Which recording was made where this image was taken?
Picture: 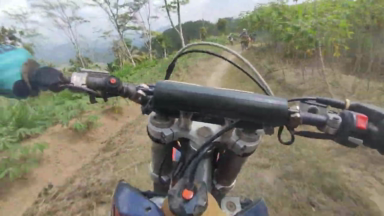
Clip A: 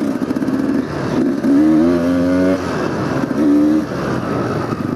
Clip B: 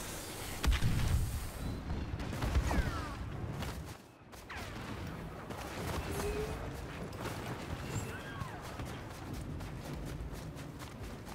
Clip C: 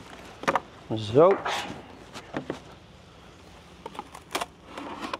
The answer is A